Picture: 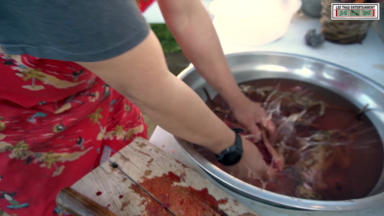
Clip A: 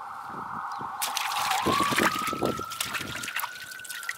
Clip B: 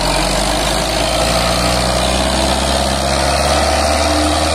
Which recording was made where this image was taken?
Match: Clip A